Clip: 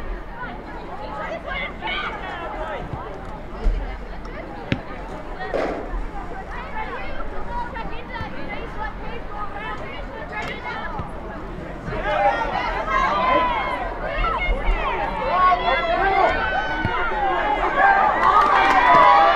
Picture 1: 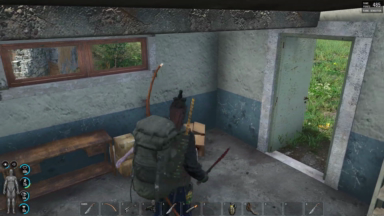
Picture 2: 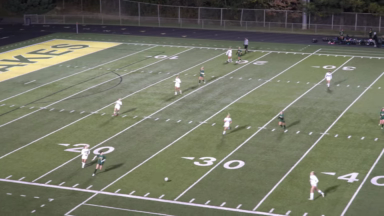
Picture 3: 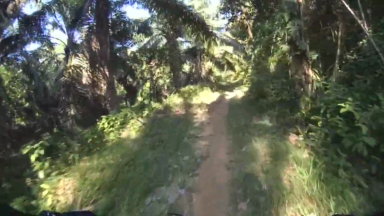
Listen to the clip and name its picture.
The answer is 2